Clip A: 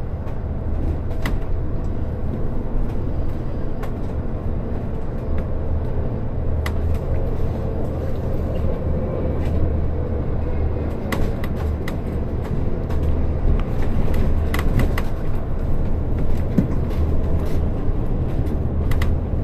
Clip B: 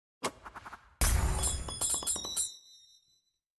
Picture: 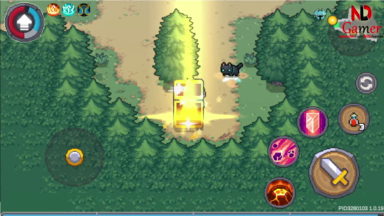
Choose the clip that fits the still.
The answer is B